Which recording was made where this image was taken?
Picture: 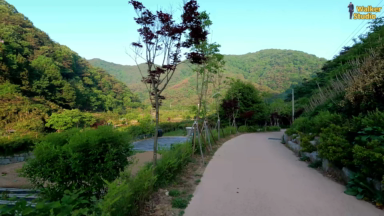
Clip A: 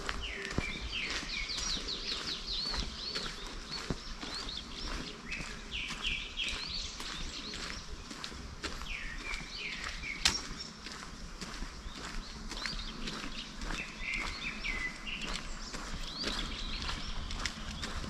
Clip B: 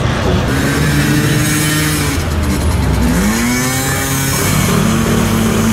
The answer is A